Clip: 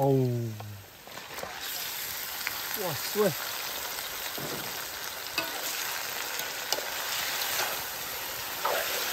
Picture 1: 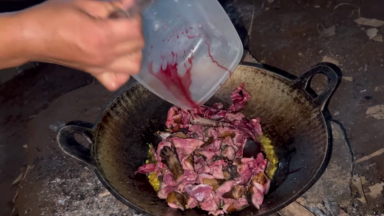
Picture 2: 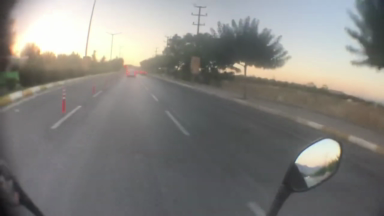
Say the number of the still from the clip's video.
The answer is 1